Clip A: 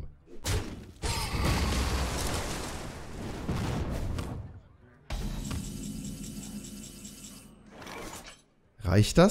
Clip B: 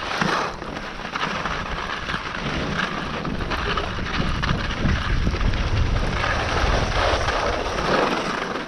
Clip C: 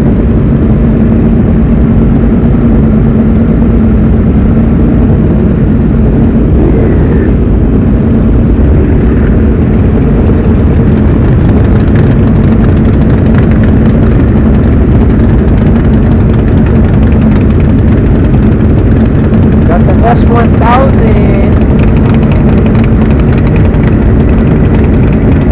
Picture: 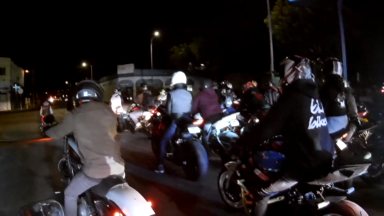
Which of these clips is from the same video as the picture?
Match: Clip C